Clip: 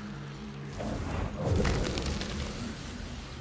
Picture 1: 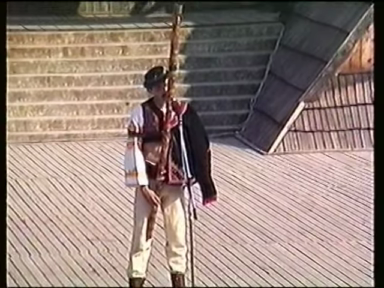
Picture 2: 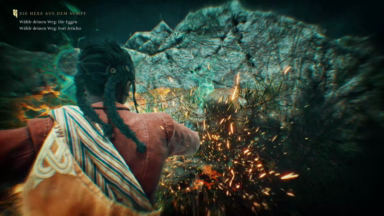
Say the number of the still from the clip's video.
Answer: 2